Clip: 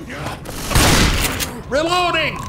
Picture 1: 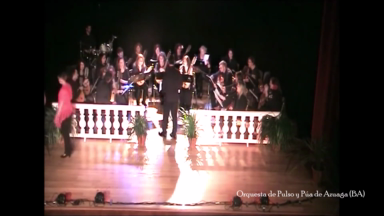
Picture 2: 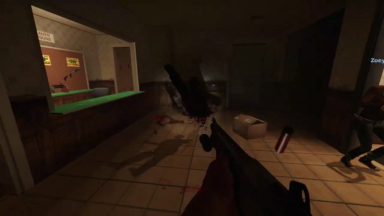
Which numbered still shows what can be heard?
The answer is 2